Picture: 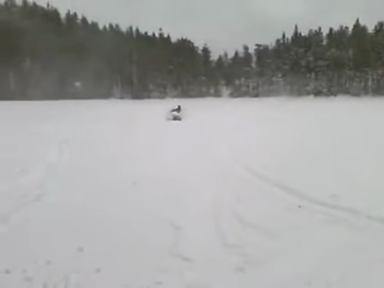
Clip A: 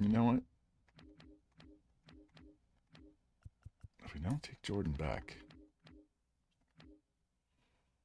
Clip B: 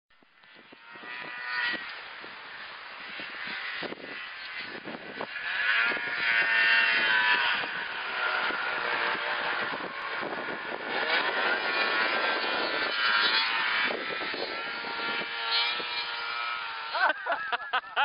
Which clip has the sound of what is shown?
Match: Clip B